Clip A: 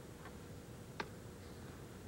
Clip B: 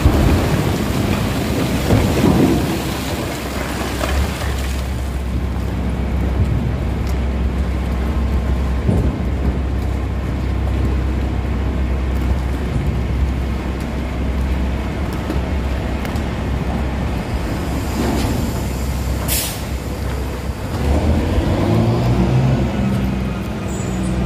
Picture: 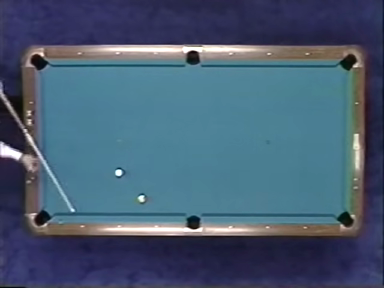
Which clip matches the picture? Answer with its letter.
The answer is A